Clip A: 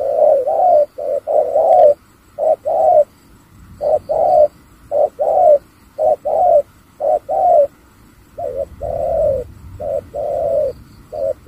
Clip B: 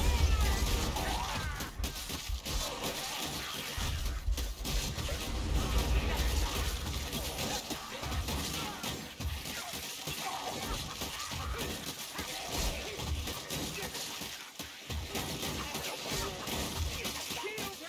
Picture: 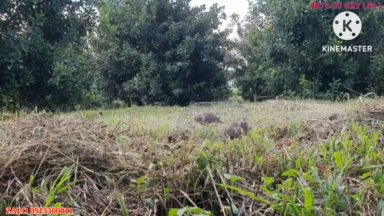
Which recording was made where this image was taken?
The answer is A